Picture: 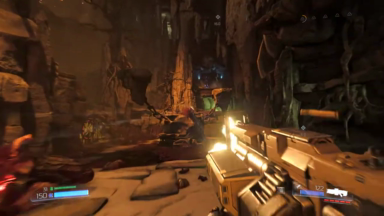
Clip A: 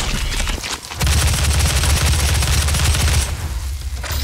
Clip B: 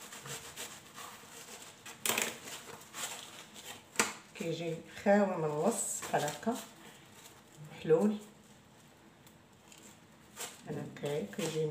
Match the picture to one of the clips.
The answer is A